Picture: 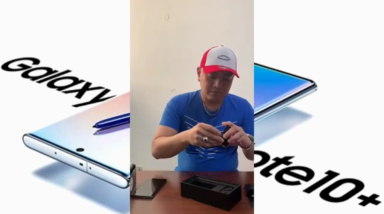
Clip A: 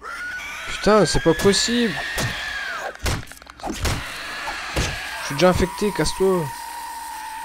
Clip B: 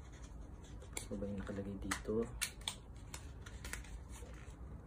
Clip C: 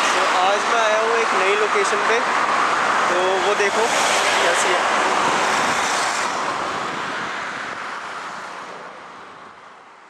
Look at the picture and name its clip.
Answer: B